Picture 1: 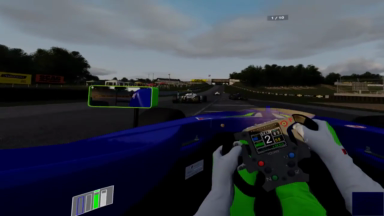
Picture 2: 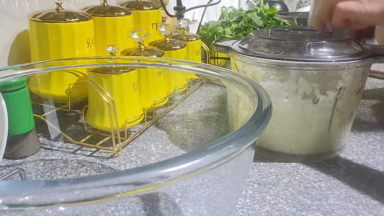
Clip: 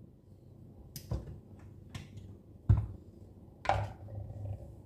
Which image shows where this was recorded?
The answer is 2